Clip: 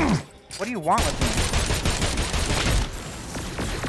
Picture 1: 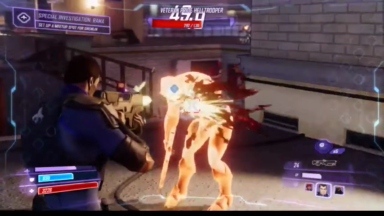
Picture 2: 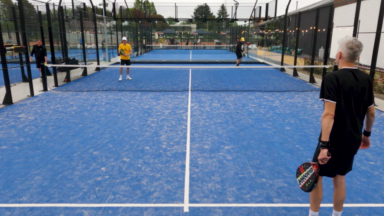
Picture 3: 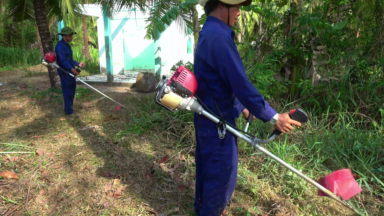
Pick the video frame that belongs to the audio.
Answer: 1